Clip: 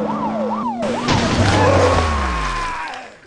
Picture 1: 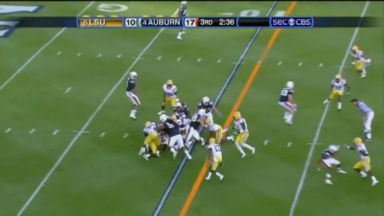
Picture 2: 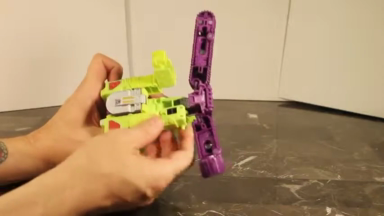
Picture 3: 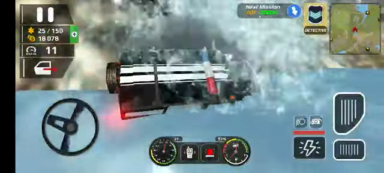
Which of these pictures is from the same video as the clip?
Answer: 3